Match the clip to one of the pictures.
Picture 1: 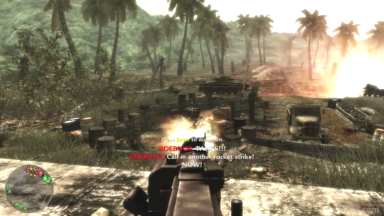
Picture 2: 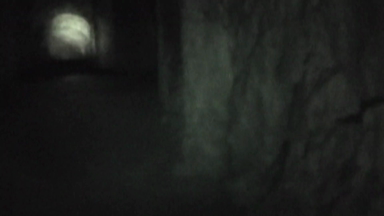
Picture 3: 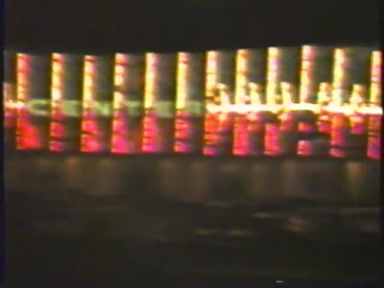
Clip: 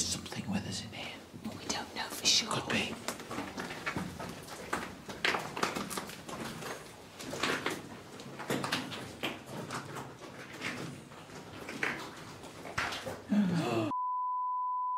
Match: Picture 2